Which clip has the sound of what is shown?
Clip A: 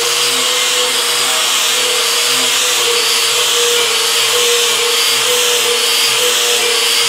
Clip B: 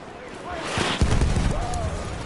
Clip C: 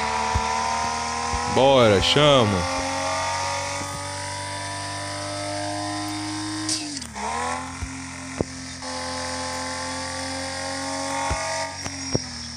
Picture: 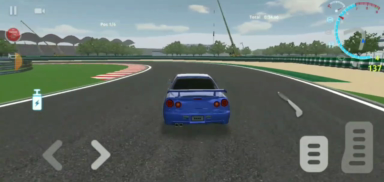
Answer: C